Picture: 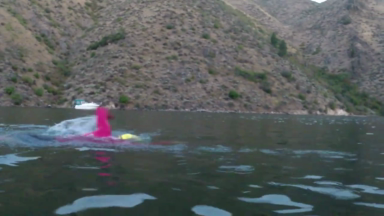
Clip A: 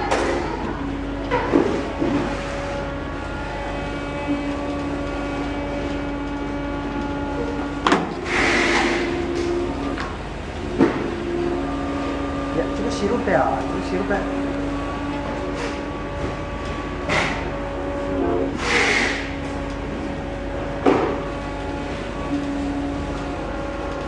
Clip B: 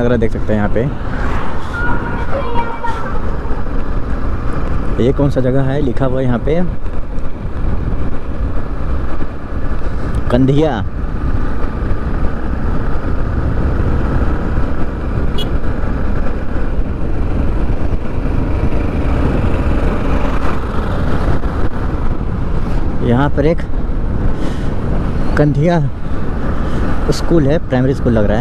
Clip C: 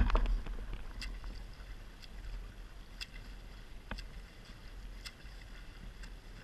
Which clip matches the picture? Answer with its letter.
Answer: C